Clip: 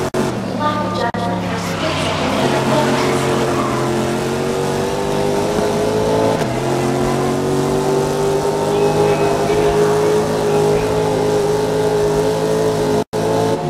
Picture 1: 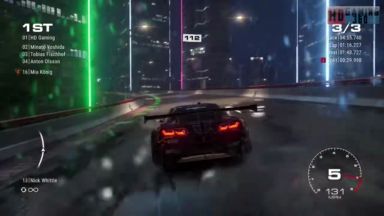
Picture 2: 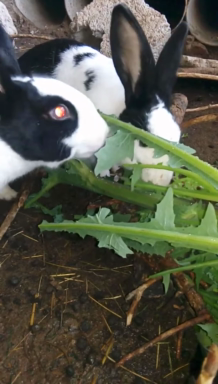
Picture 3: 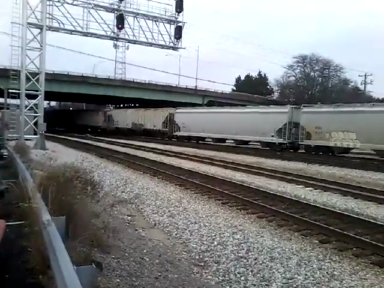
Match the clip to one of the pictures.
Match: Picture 1